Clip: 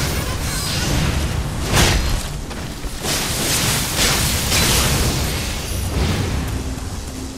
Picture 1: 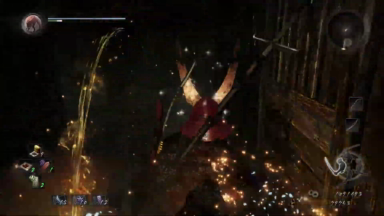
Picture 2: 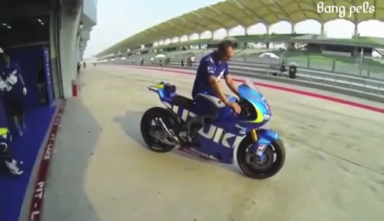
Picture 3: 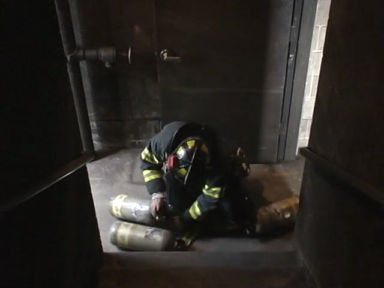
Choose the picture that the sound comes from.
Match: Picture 1